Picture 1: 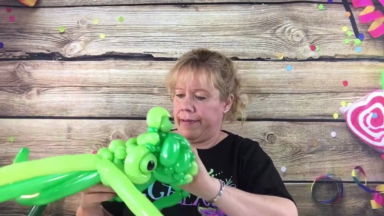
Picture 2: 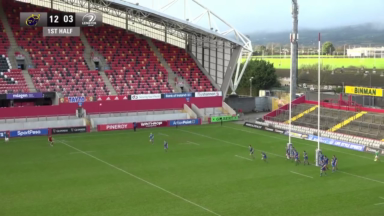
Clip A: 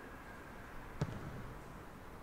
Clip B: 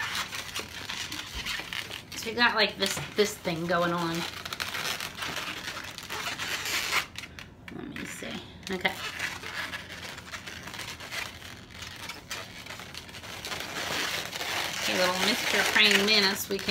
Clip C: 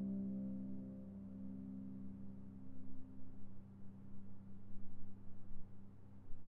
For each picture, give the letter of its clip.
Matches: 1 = B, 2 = A